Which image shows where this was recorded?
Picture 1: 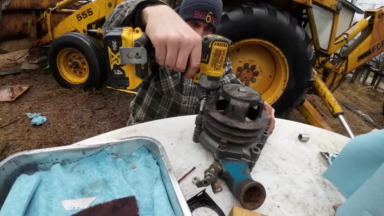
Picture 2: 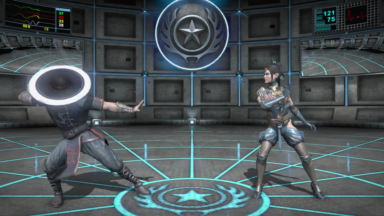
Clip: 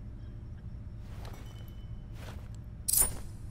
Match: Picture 2